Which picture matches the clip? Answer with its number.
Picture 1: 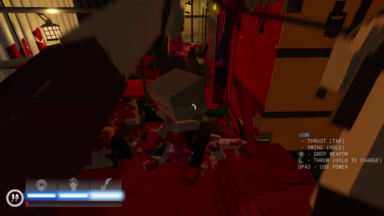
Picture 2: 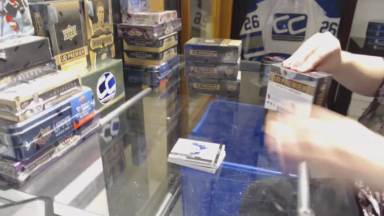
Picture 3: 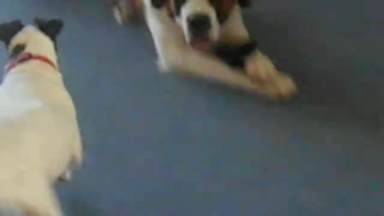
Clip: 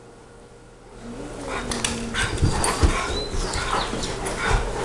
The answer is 3